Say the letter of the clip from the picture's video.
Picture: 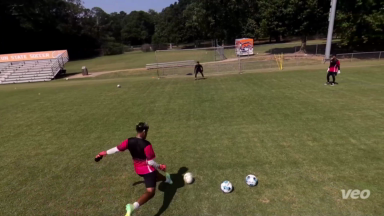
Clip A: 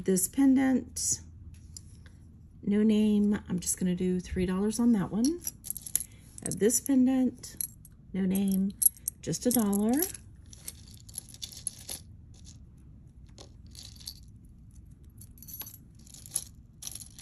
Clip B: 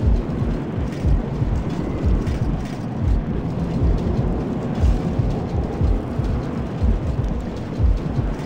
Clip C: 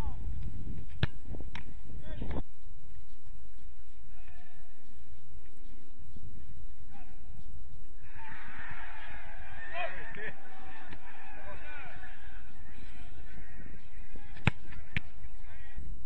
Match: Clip C